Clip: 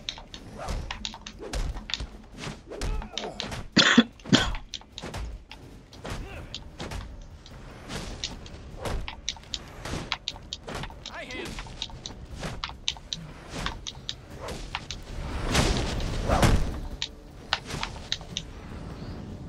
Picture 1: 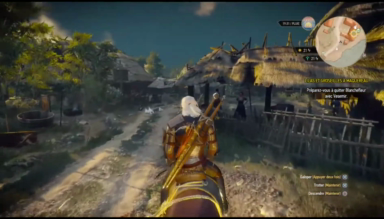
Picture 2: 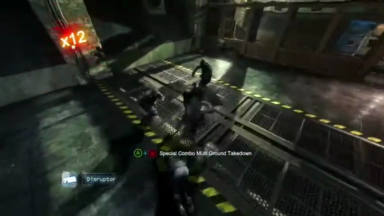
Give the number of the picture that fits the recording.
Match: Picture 2